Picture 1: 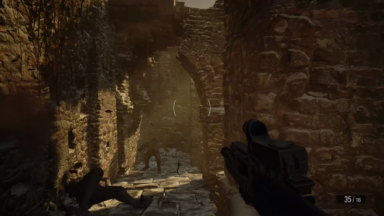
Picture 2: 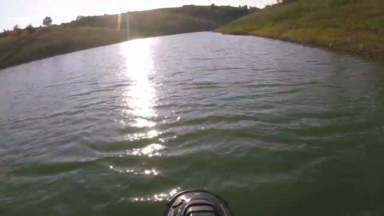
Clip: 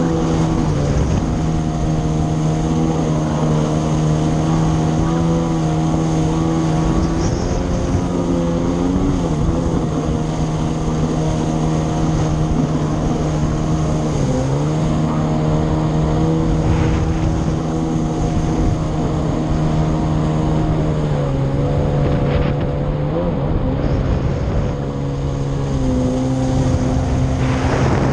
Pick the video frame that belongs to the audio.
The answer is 2